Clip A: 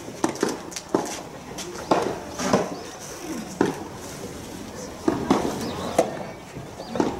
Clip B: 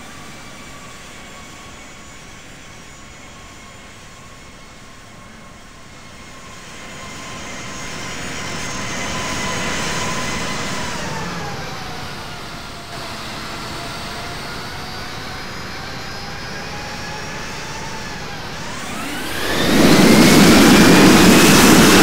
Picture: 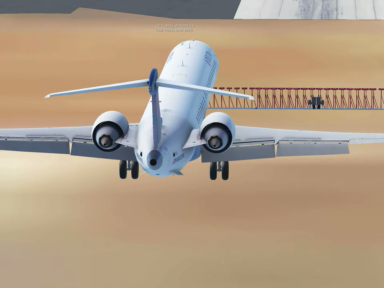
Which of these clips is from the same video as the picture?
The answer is B